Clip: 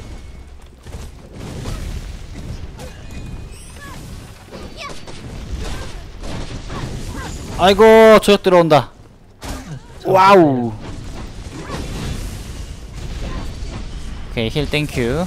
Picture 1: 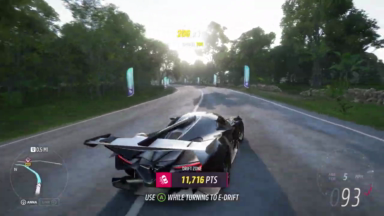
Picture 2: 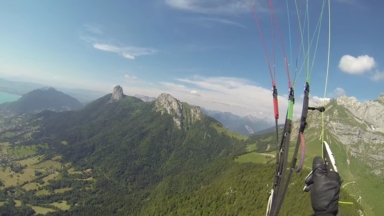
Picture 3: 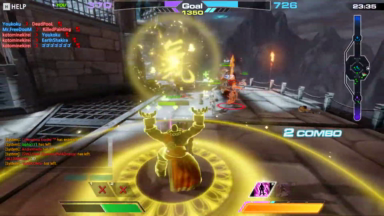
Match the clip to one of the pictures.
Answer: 3